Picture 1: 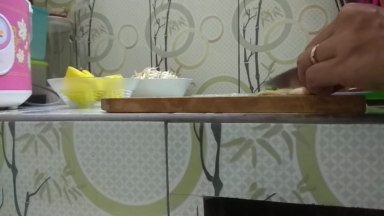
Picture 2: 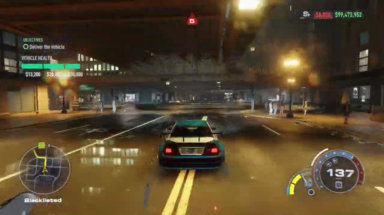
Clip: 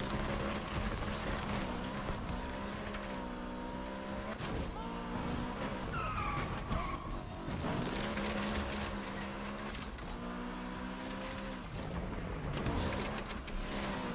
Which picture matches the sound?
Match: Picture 2